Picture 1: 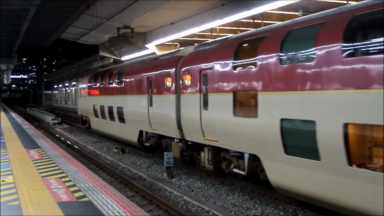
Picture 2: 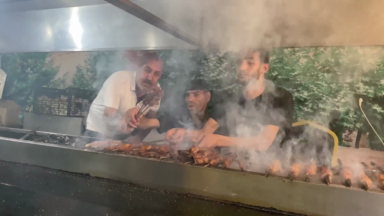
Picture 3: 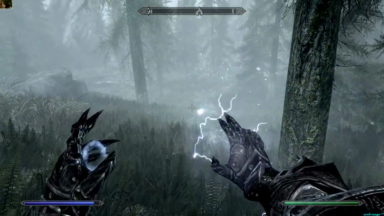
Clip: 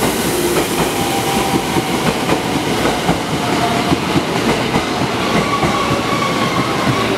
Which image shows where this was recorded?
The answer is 1